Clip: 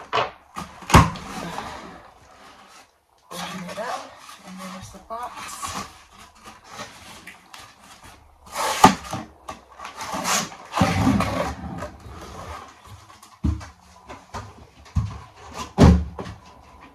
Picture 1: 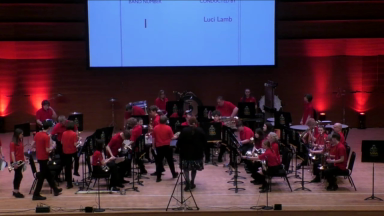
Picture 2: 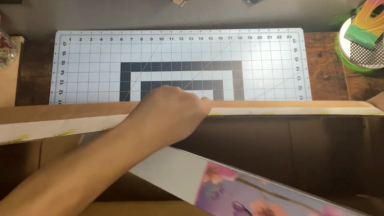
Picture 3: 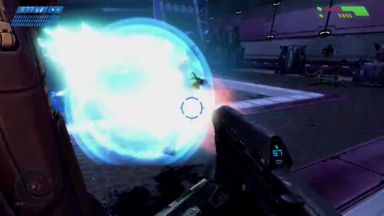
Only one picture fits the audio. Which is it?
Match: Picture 2